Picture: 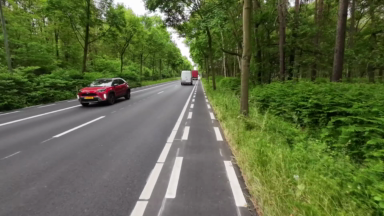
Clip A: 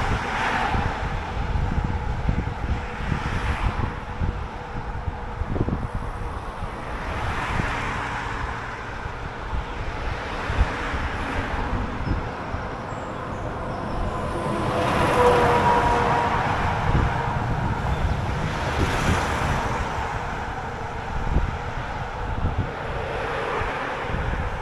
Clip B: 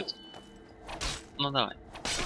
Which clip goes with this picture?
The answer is A